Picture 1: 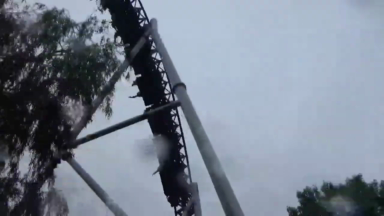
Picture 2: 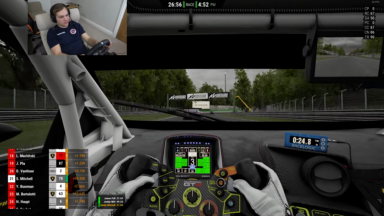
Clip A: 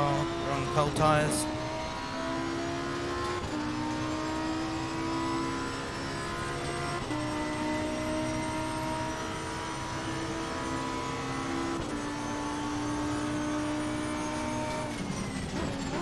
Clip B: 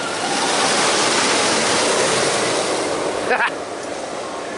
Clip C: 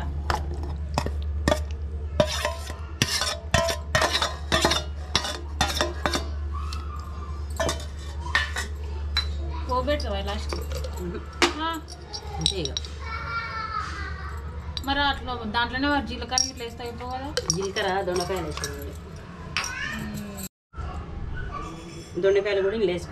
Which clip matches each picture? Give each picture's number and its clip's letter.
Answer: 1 B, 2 A